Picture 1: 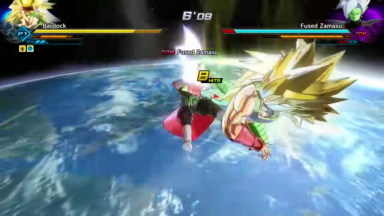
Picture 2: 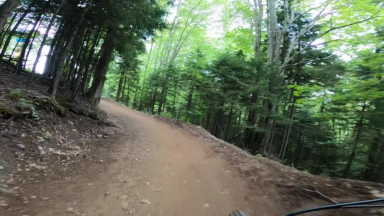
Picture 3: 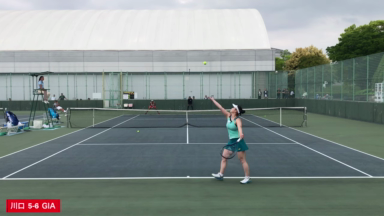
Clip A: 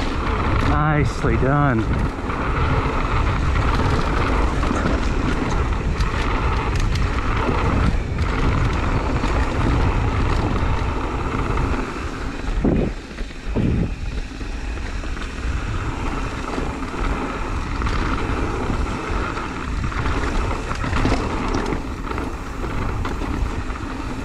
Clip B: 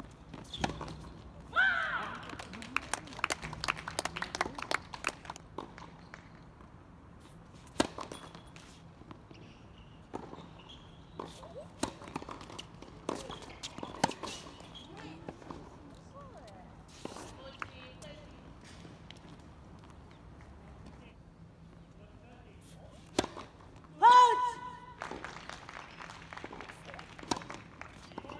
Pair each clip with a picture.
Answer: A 2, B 3